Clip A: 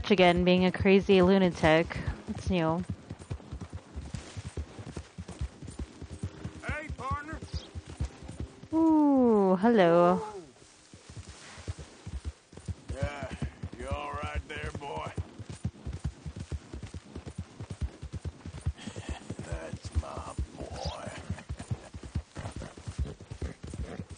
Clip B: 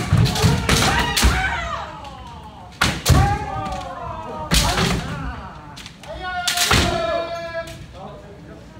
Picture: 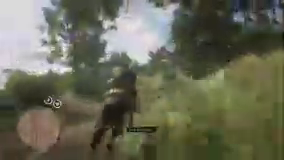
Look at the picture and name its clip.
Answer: A